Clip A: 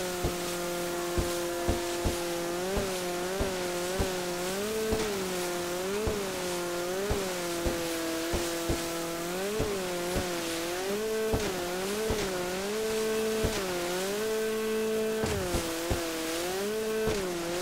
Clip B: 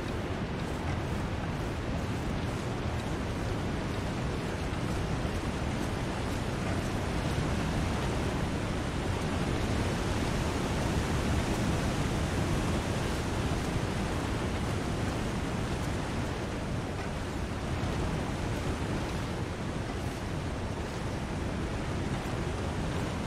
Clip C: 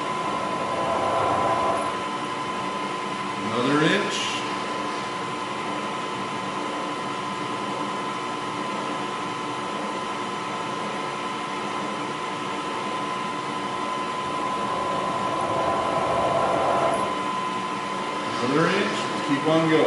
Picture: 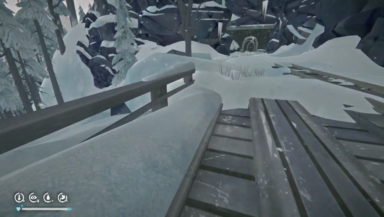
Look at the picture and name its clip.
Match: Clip B